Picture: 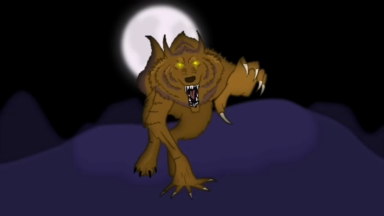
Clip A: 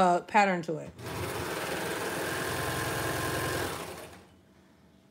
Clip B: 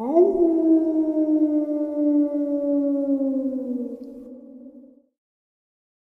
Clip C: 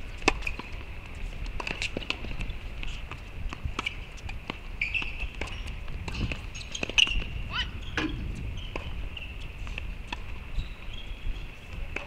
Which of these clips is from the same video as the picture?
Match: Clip B